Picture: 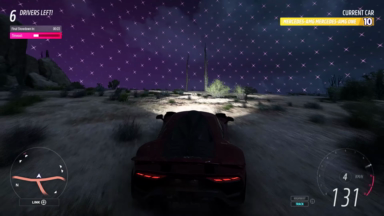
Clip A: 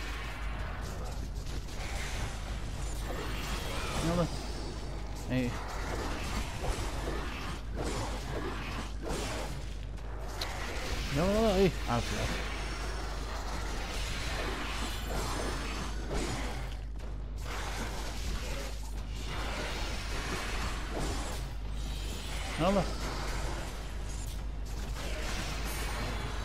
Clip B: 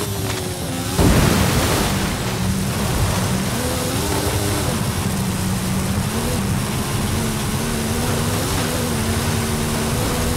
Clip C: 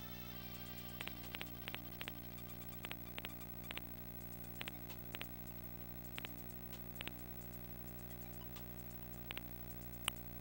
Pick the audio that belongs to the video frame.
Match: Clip B